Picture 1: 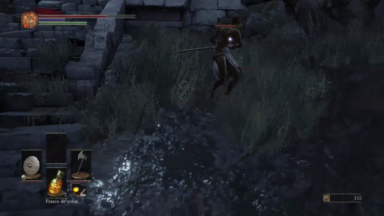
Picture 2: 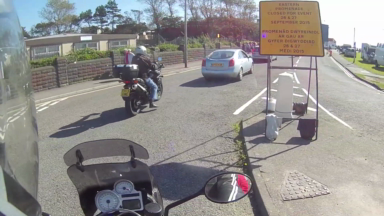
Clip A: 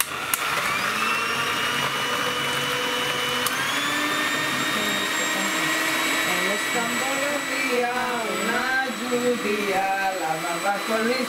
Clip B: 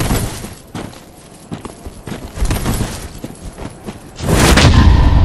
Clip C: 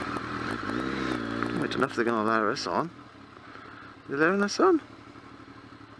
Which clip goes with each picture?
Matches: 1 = B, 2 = C